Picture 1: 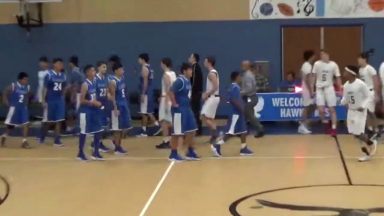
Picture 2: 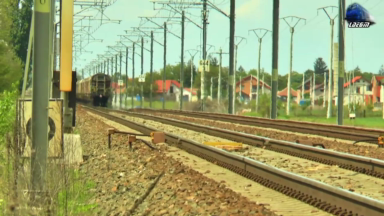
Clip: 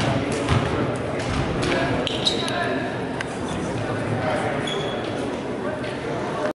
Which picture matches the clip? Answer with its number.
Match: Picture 1